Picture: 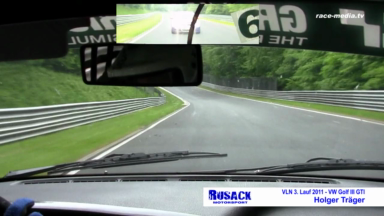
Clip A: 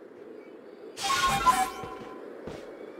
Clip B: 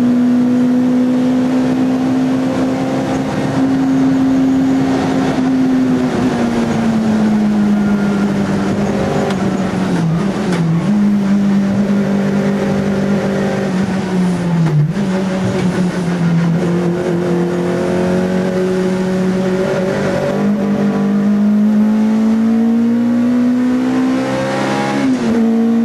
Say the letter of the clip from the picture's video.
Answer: B